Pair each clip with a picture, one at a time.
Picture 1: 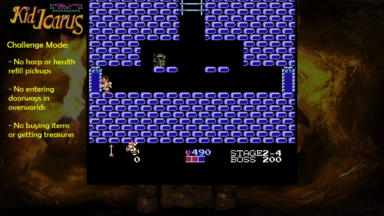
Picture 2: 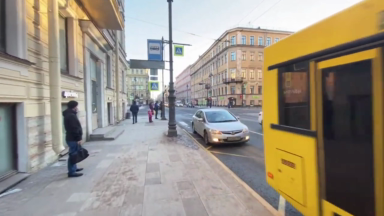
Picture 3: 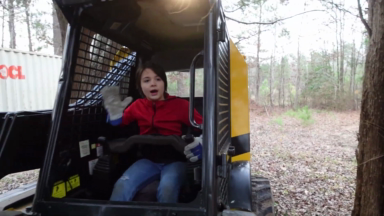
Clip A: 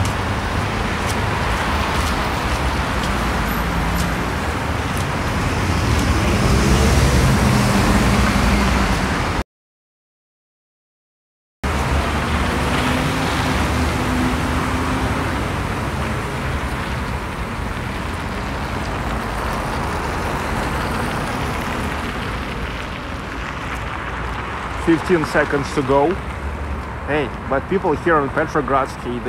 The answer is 2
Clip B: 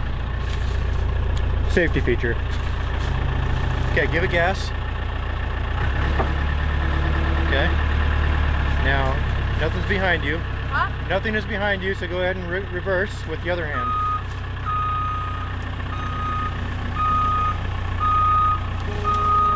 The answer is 3